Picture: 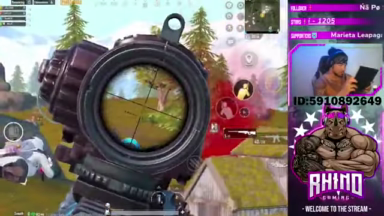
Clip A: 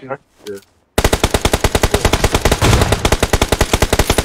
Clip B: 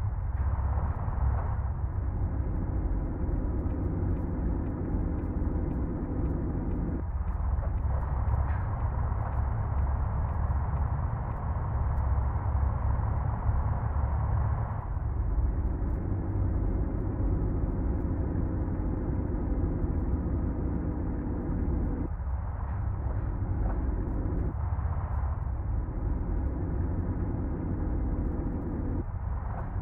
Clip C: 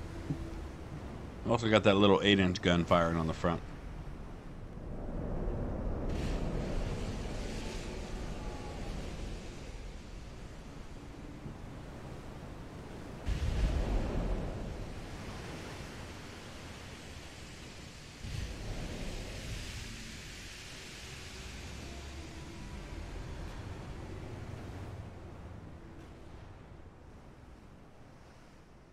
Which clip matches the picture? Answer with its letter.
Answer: A